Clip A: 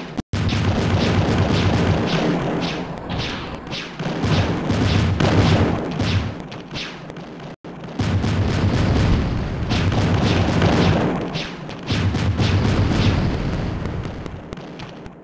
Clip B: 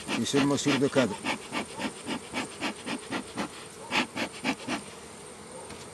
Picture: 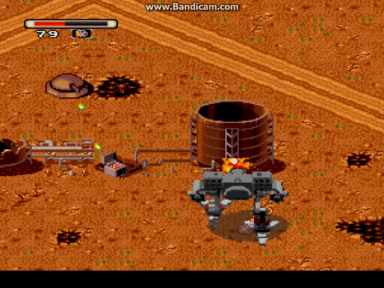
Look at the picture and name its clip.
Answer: A